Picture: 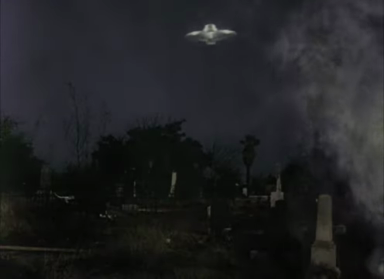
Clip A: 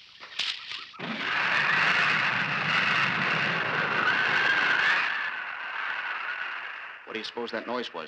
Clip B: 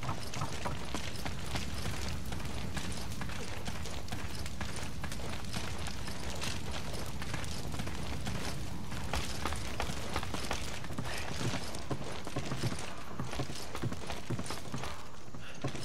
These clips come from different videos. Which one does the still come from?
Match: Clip A